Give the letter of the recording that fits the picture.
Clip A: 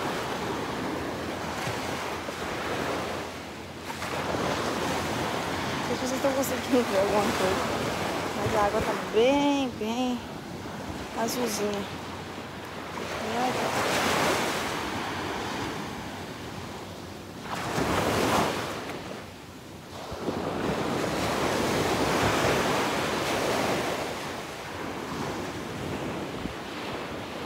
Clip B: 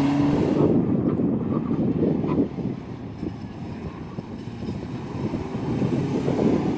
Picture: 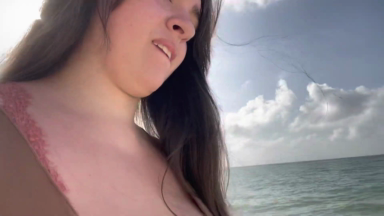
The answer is A